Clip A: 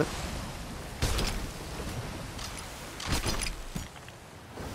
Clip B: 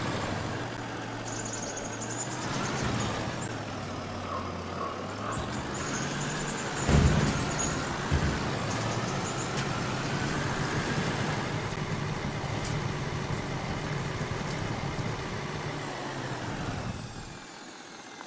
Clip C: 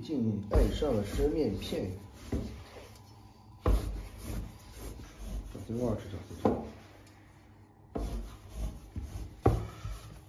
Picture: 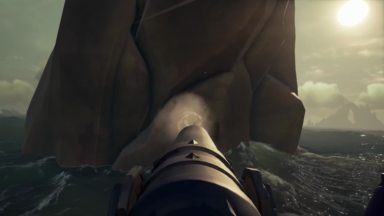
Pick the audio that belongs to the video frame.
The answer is A